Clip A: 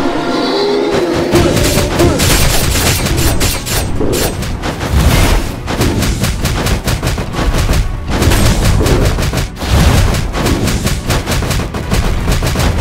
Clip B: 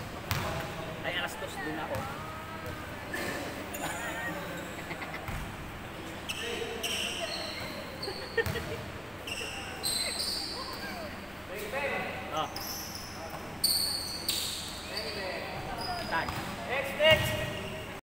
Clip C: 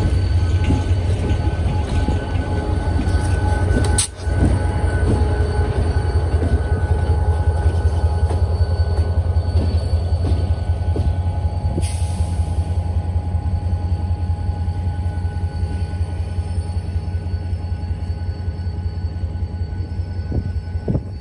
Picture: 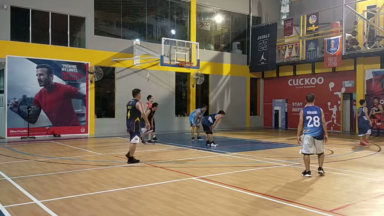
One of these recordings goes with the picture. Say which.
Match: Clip B